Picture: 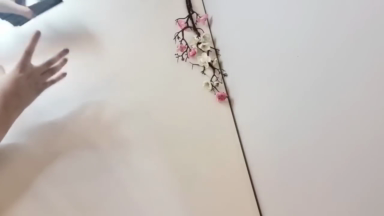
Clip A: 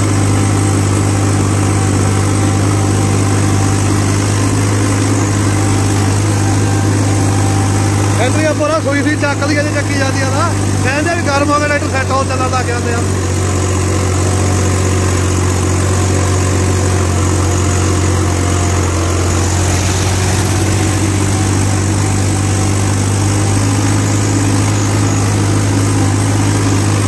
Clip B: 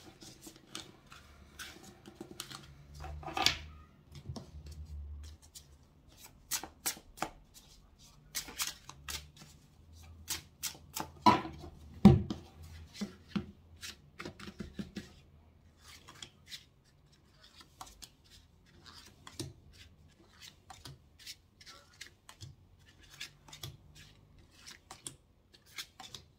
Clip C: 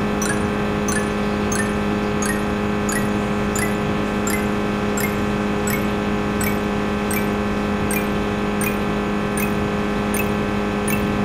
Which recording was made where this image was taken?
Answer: B